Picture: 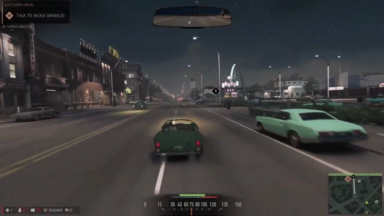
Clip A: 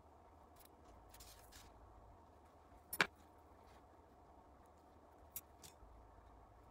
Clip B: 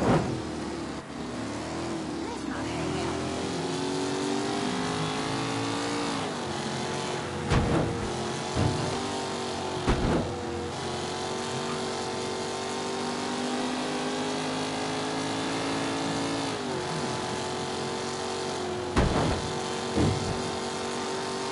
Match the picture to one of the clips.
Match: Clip B